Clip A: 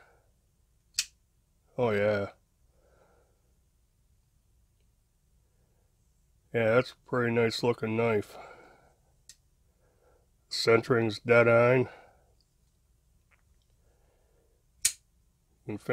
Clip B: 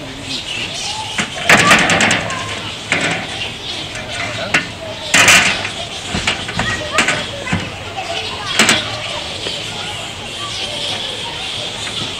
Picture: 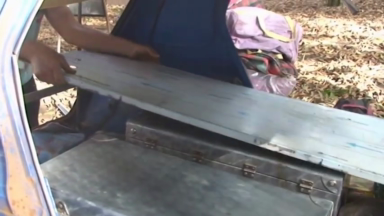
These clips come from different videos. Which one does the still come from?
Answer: B